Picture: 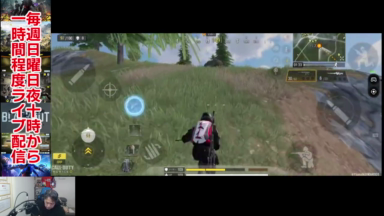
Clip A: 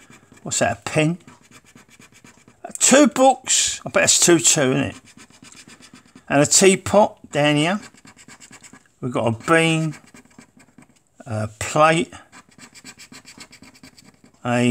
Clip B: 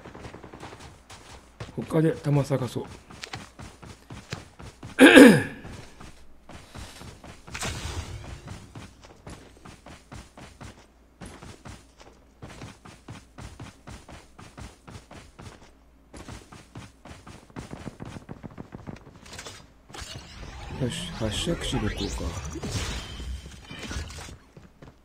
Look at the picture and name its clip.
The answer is B